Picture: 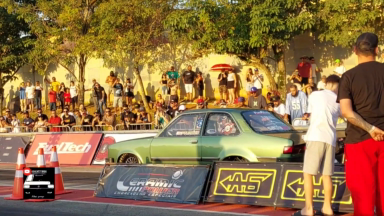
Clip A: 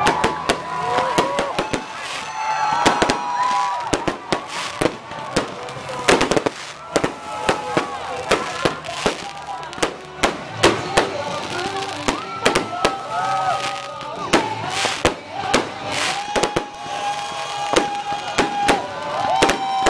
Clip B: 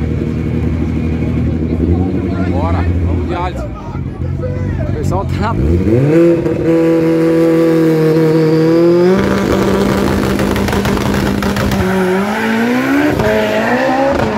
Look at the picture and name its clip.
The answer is B